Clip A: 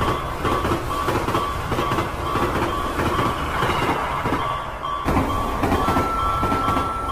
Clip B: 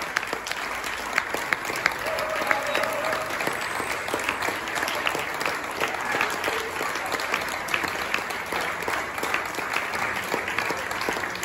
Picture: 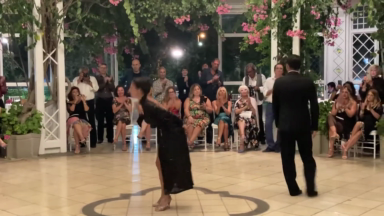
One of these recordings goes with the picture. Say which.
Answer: B